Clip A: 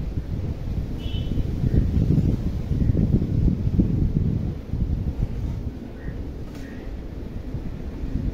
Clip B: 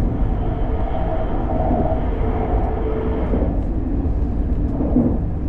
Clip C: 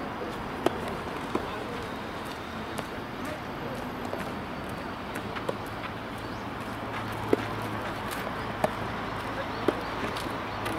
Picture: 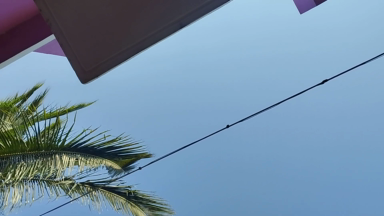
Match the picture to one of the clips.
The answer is A